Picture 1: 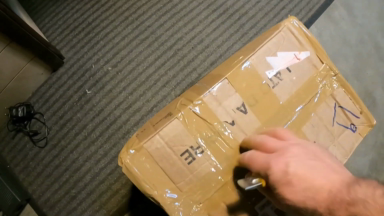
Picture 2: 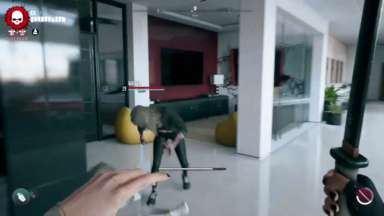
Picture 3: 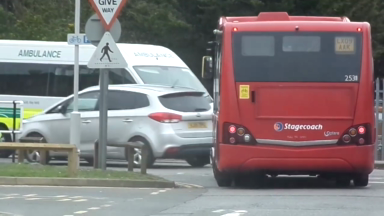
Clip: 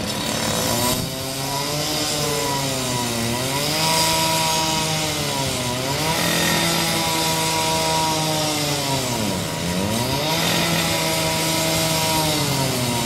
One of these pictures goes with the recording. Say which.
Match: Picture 3